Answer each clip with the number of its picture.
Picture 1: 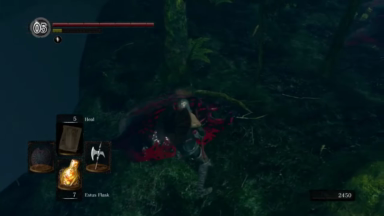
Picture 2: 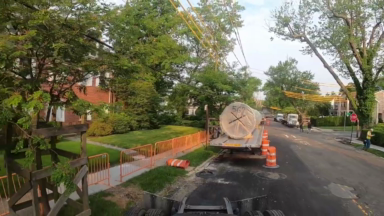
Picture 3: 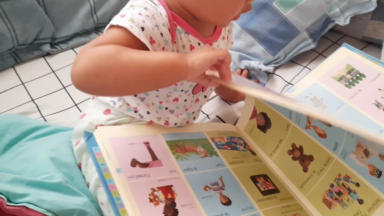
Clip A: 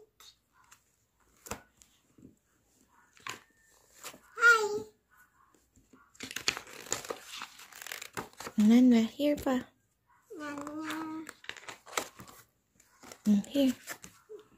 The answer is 3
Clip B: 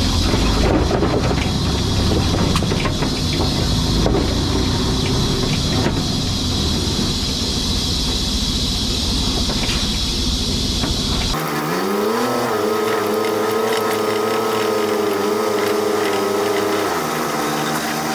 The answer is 2